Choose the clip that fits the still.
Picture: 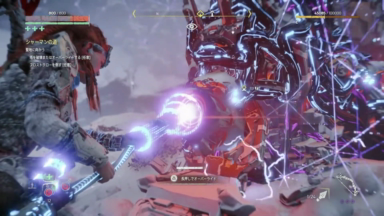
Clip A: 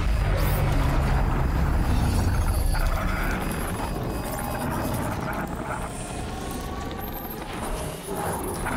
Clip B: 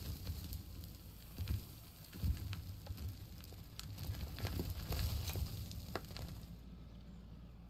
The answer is A